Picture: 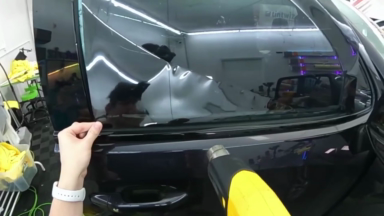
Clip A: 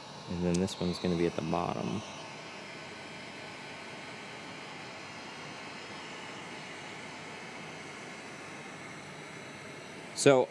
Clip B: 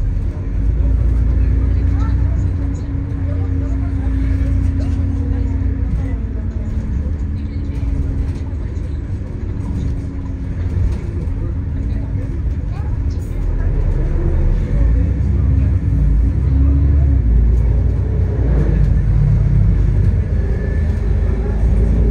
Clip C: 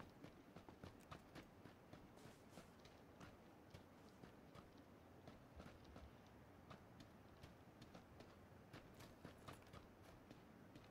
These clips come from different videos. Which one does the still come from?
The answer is A